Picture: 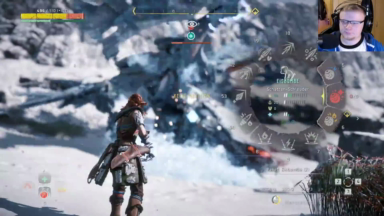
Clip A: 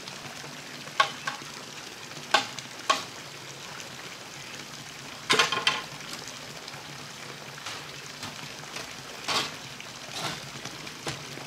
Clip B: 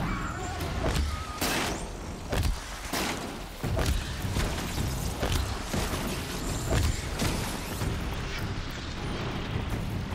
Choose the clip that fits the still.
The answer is B